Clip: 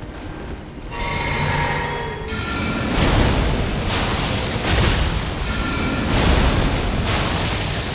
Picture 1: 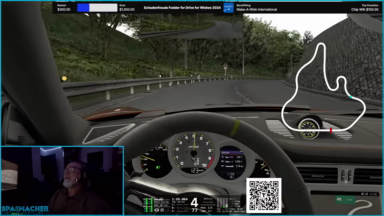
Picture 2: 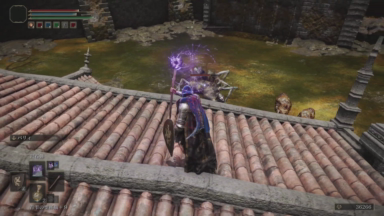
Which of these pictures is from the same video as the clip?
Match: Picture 2